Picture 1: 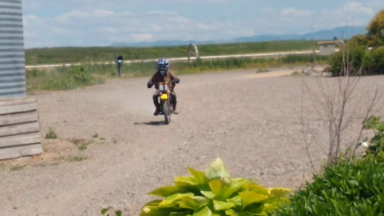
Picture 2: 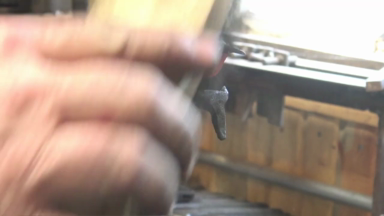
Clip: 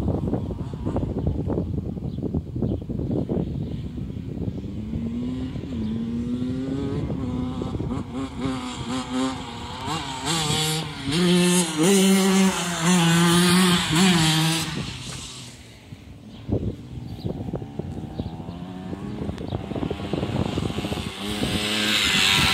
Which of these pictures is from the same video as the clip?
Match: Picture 1